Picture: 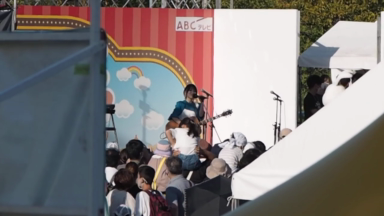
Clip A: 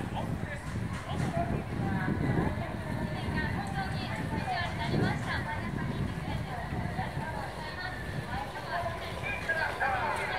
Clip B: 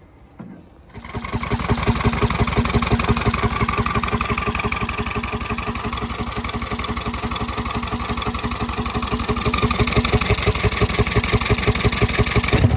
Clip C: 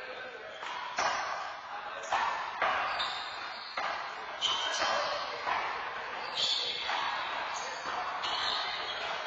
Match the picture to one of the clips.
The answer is A